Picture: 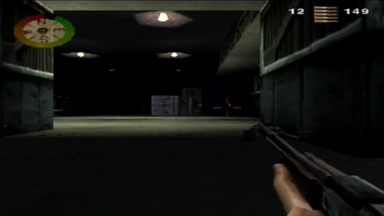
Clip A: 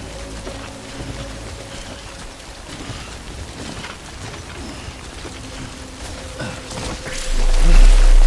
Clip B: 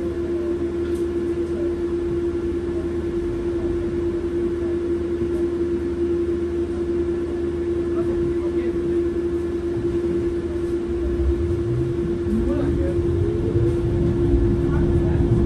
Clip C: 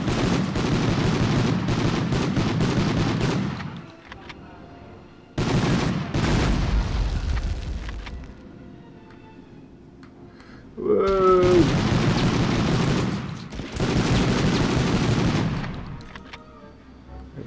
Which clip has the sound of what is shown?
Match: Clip C